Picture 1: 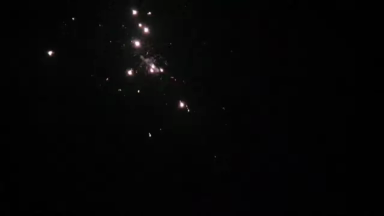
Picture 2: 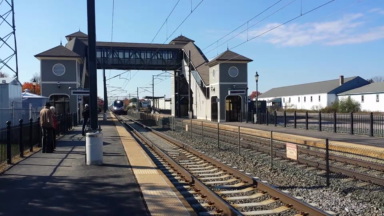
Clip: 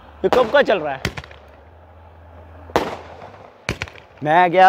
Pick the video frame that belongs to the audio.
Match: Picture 1